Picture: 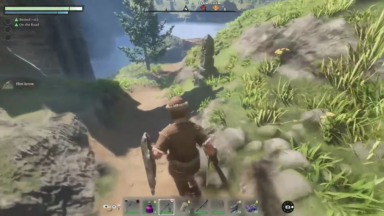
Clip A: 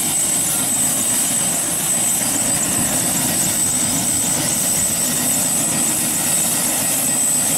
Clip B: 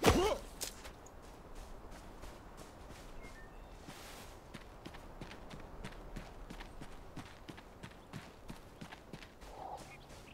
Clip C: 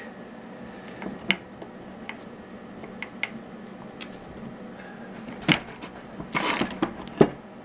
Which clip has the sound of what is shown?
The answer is B